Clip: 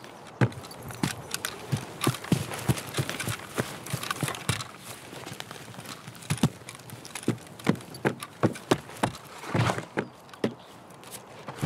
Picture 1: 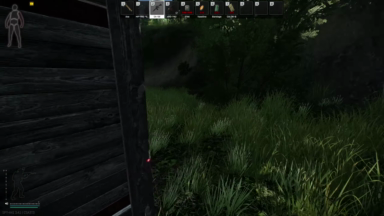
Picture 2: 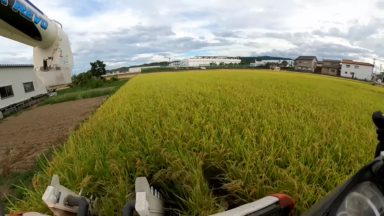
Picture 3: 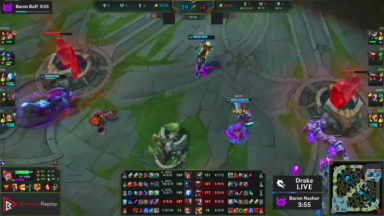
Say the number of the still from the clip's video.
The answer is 1